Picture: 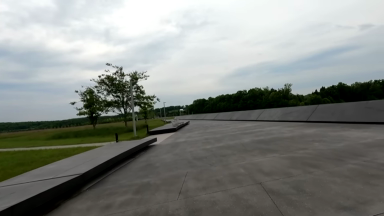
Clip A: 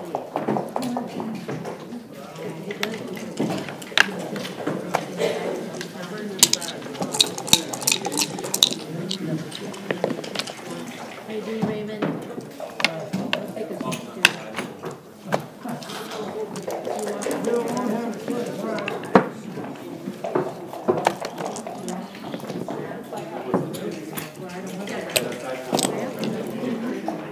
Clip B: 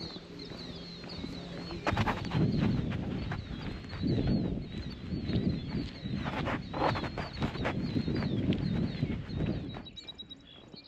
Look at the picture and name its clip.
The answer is B